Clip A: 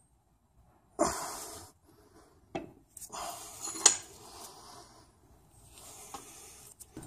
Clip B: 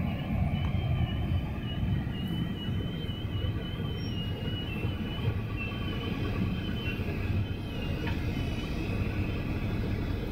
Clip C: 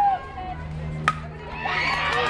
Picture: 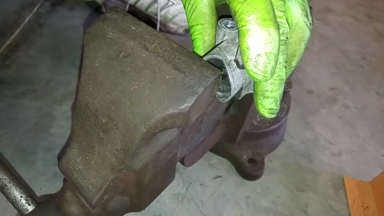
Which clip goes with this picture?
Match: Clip A